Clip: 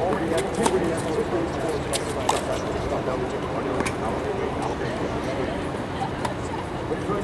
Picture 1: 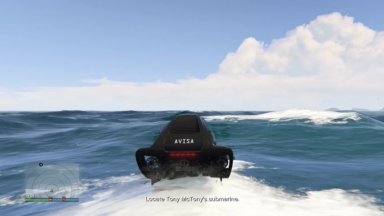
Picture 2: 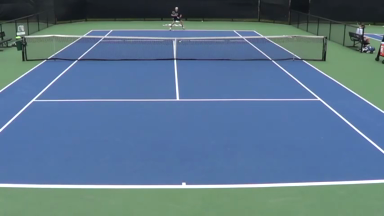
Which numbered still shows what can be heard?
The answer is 2